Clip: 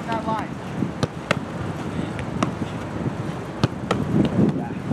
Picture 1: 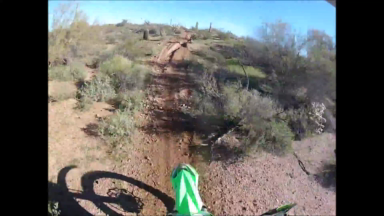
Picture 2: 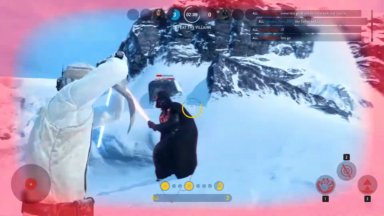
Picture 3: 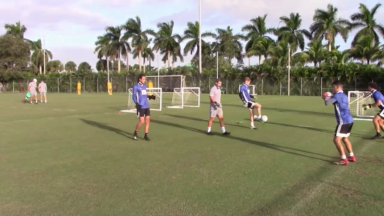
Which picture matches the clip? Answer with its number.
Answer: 3